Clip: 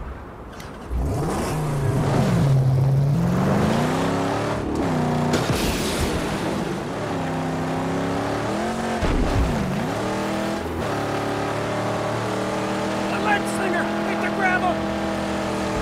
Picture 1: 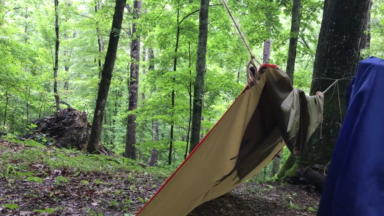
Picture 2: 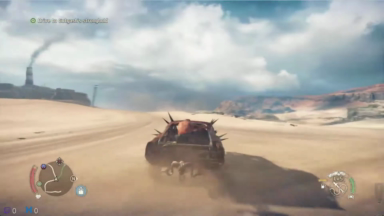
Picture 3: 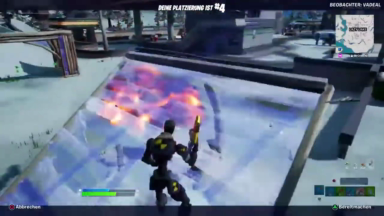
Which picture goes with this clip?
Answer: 2